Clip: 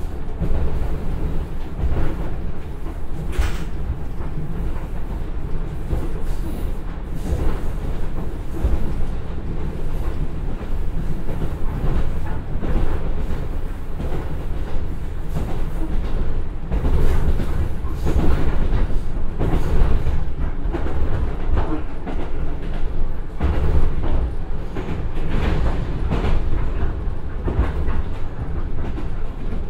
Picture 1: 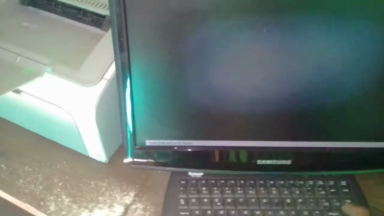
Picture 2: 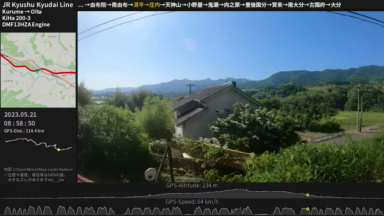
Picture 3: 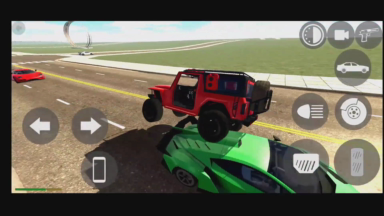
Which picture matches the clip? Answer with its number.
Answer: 2